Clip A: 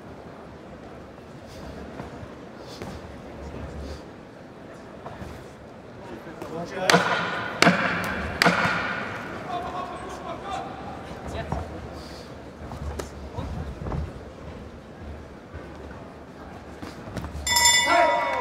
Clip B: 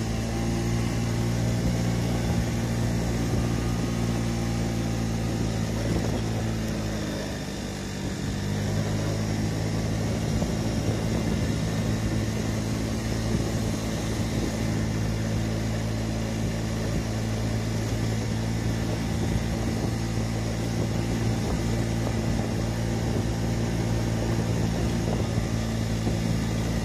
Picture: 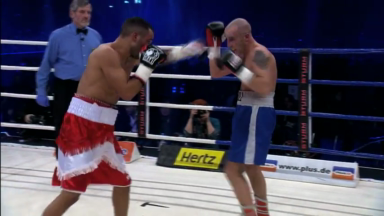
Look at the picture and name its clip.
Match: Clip A